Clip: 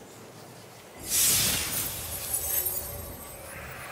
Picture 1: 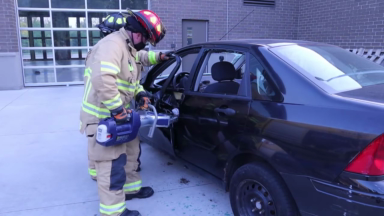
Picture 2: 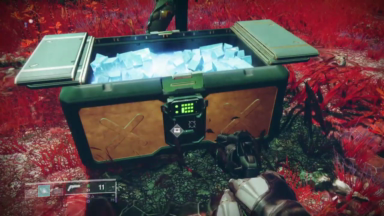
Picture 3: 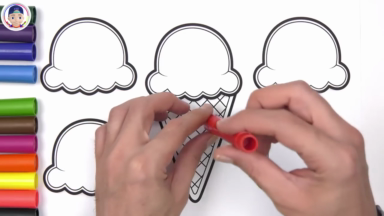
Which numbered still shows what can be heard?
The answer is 2